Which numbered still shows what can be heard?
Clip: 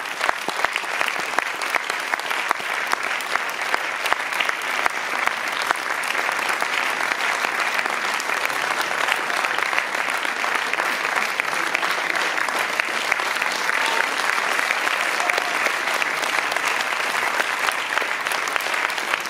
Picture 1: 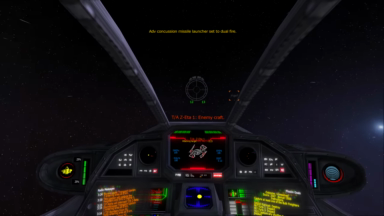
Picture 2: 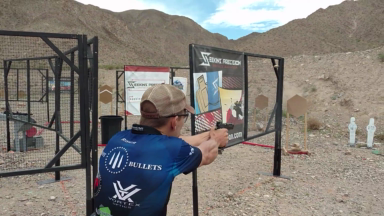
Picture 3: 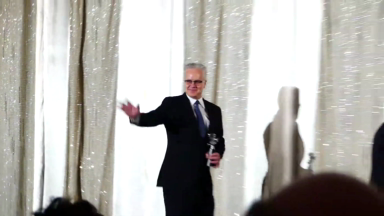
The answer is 3